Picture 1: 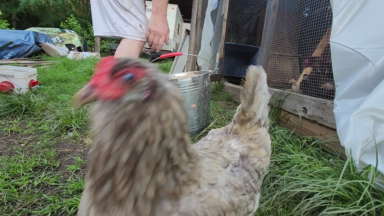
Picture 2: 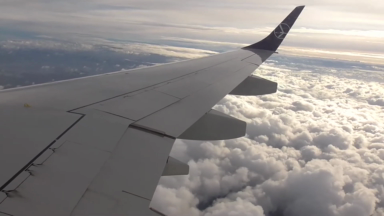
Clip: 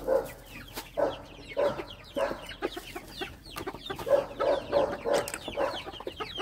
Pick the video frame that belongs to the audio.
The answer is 1